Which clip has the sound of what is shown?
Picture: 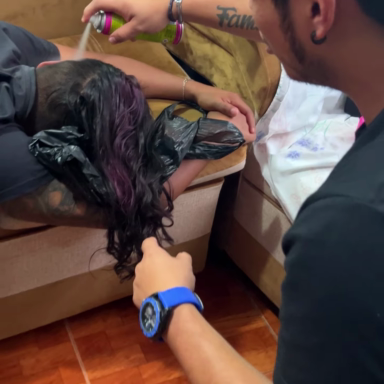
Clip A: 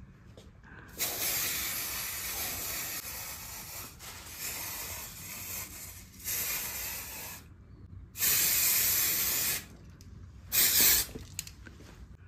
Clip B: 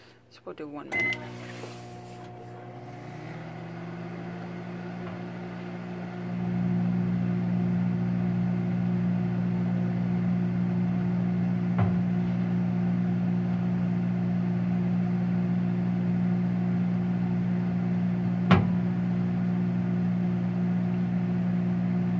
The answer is A